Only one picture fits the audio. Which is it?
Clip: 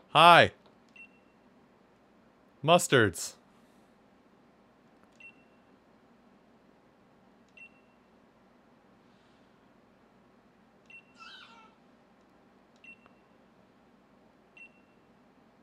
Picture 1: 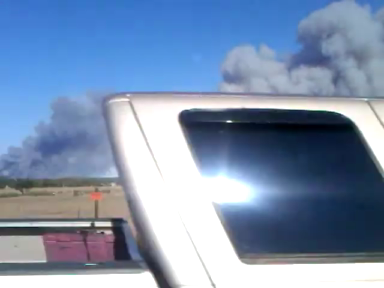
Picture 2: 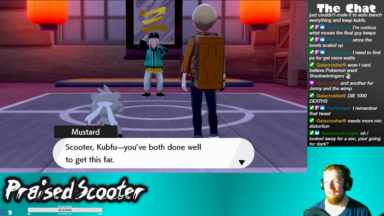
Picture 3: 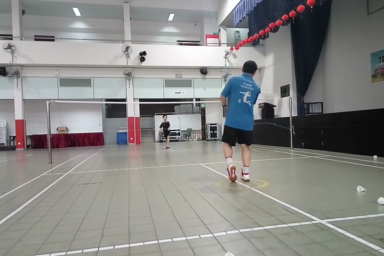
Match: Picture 2